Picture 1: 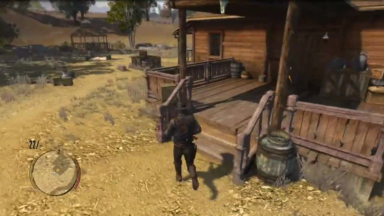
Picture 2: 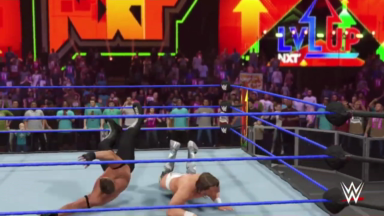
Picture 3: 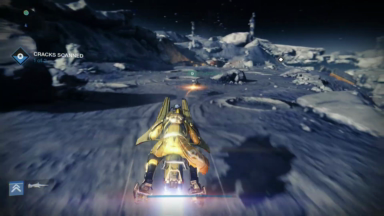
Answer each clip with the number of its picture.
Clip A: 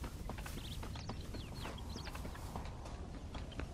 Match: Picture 1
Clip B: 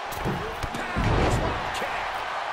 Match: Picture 2